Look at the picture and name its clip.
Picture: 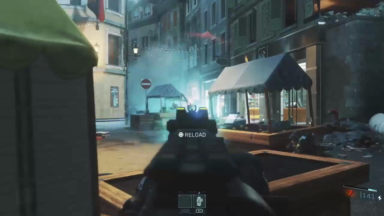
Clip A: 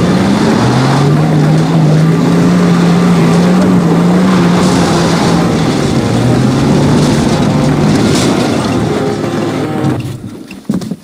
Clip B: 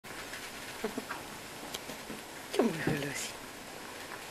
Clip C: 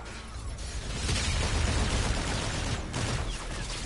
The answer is C